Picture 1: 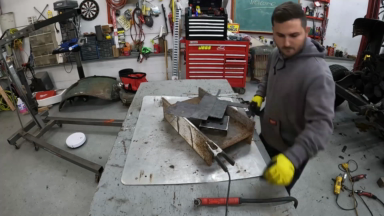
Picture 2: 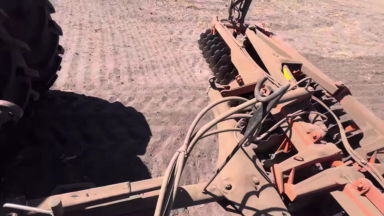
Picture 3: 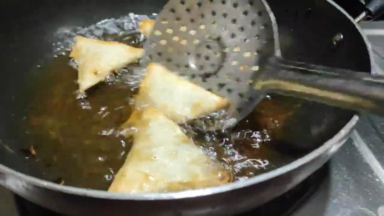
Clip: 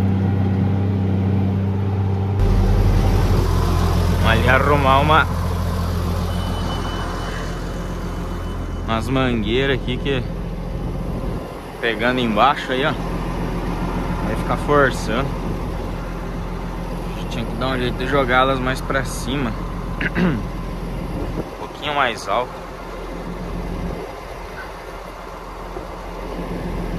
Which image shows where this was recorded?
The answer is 2